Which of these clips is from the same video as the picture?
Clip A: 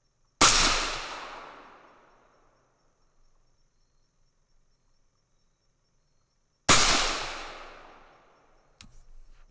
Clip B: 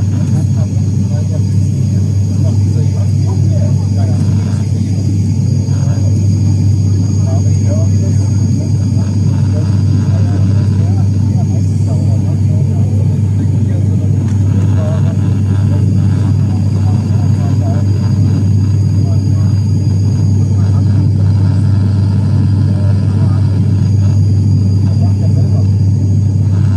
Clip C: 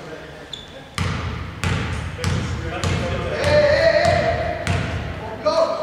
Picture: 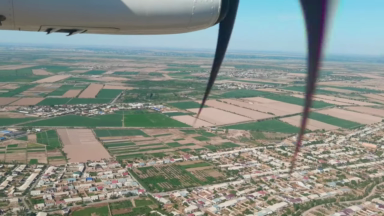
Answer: B